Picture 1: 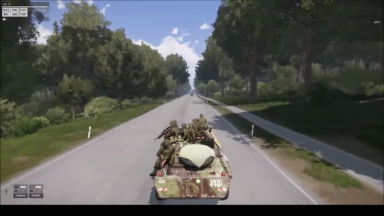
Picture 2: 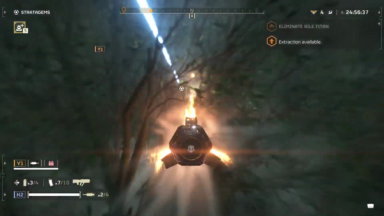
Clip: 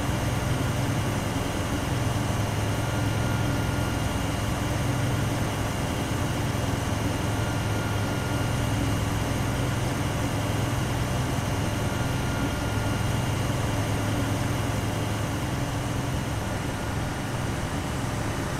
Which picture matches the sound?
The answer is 1